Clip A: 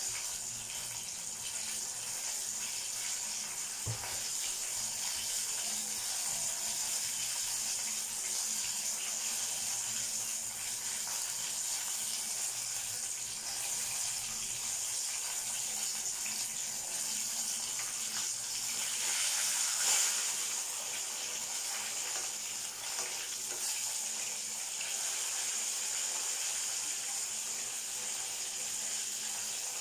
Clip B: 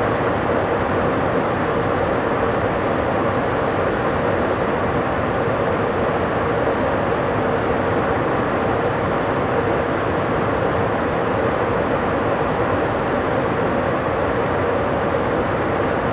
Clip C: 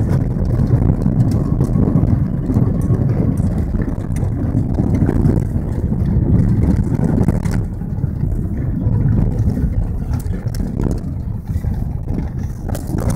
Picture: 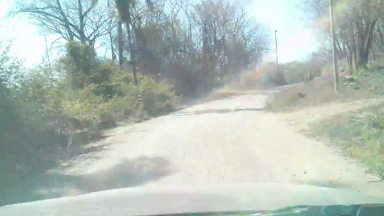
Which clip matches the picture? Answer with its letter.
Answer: C